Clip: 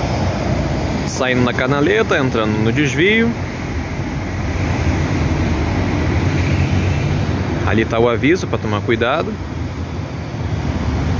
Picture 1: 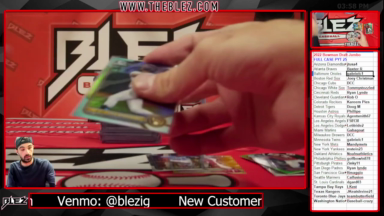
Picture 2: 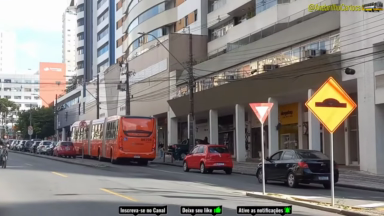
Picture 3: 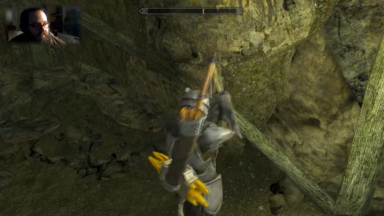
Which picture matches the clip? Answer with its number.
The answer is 2